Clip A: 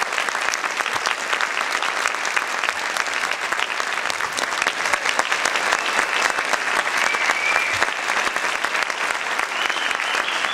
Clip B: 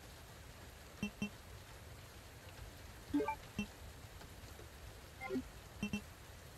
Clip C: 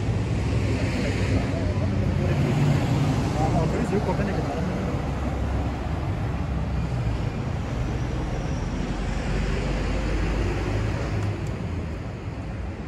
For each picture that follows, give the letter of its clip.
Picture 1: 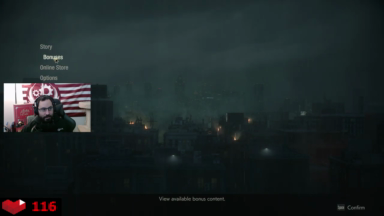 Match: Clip B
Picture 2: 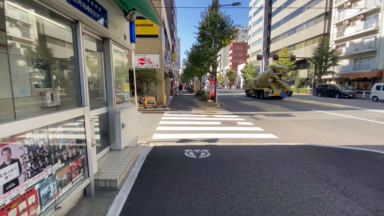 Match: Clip C